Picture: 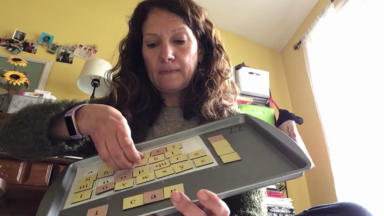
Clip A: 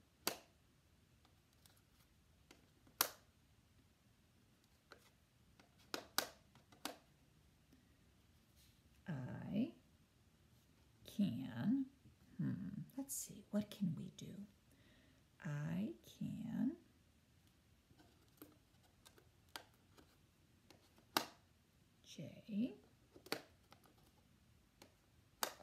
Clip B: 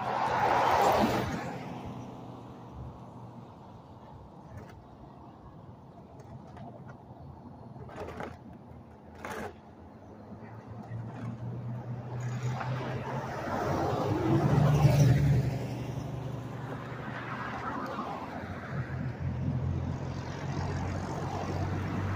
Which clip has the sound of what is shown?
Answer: A